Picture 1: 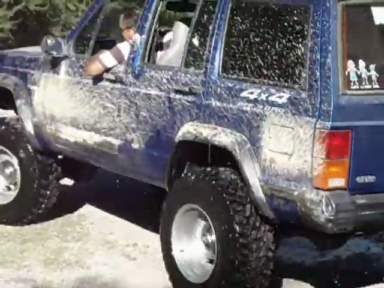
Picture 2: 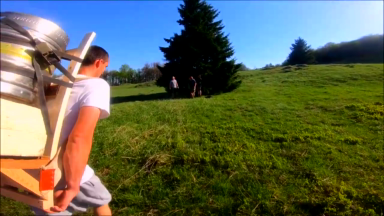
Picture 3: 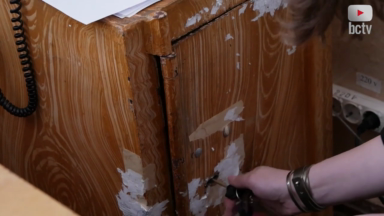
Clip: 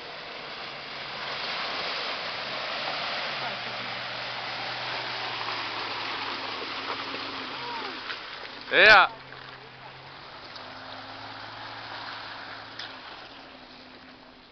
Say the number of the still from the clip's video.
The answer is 1